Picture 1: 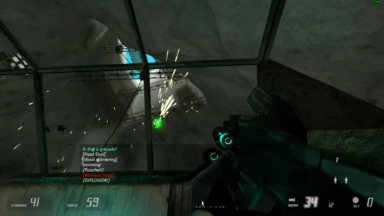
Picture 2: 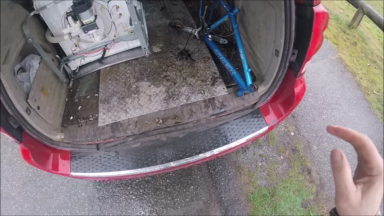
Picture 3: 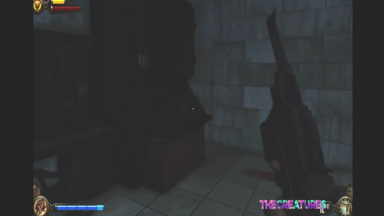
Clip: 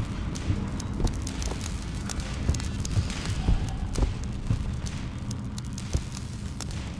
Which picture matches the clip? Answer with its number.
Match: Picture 3